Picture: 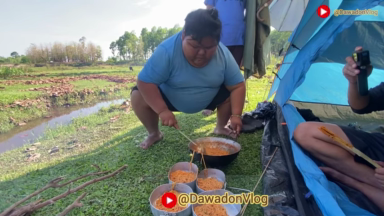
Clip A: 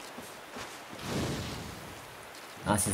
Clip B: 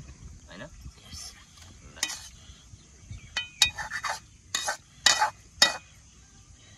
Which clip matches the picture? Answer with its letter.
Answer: B